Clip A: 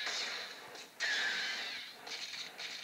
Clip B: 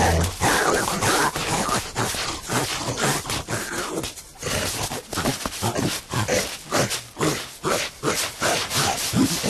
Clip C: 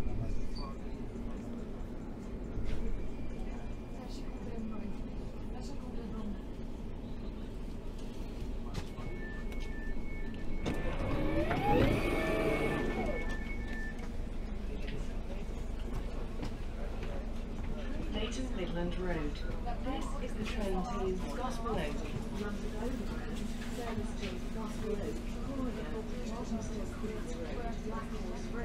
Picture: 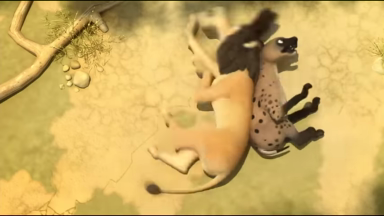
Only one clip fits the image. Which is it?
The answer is B